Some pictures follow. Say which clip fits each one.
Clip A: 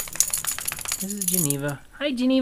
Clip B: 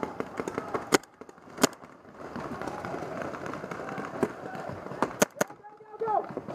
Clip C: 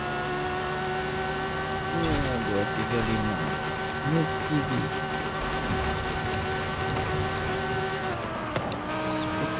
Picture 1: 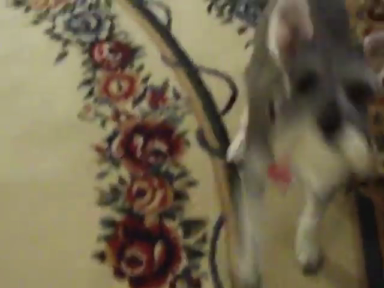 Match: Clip A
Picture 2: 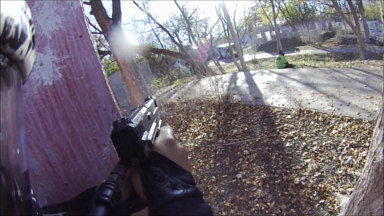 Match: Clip B